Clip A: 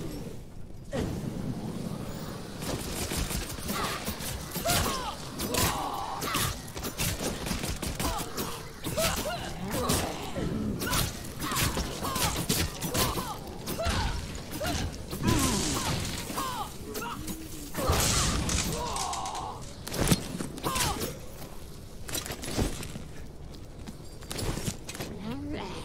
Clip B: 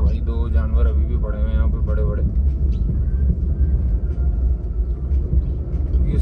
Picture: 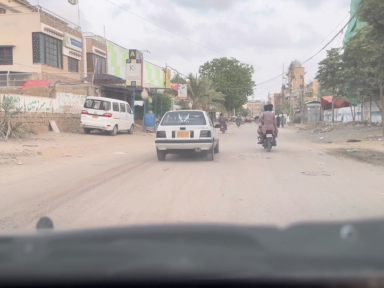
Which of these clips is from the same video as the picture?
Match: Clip B